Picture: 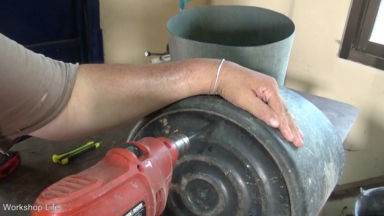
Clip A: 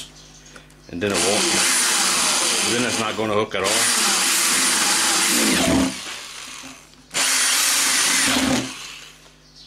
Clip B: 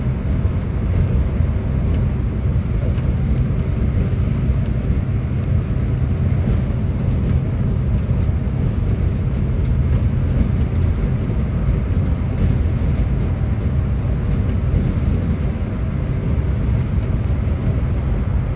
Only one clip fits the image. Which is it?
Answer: A